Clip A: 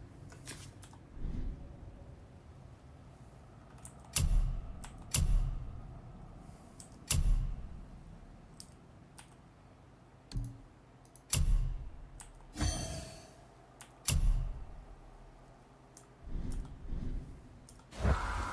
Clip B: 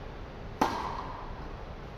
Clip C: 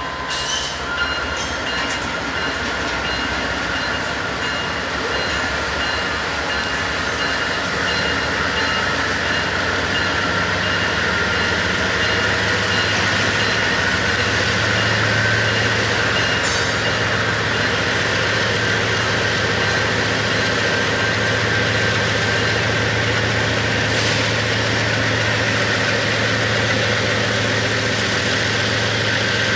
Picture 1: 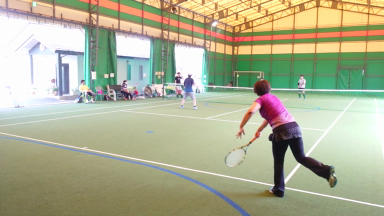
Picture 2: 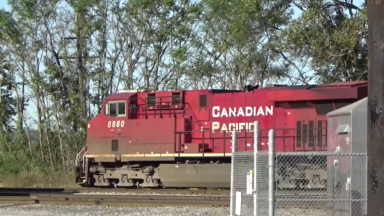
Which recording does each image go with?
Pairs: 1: B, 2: C